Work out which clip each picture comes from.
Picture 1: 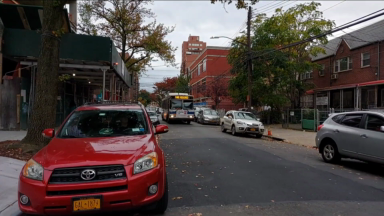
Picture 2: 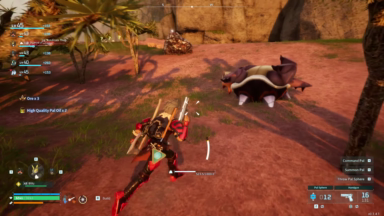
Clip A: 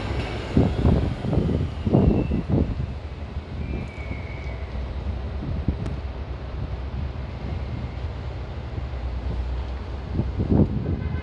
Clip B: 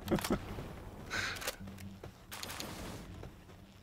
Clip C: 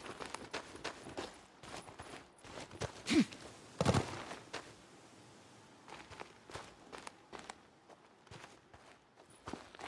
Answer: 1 A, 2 B